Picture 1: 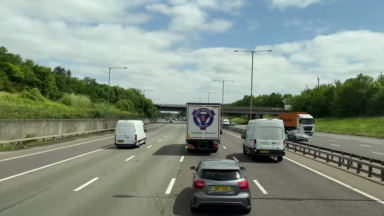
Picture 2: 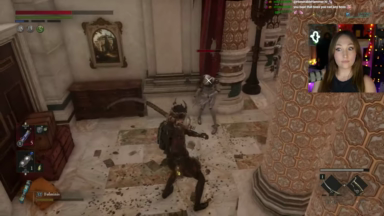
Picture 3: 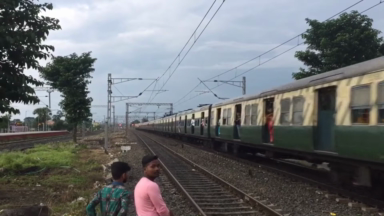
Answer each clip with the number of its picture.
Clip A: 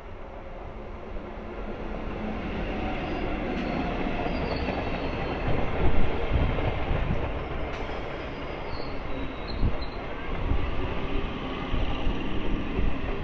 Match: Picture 3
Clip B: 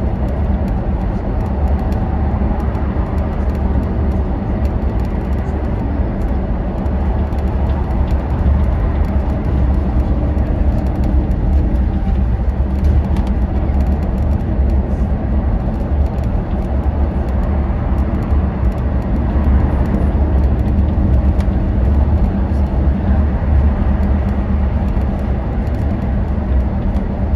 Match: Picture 1